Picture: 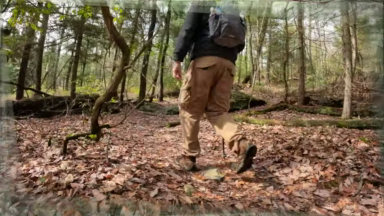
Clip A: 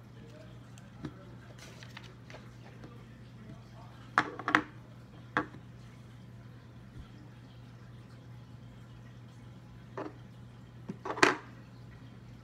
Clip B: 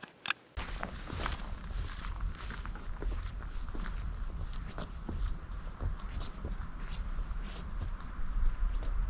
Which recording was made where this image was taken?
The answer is B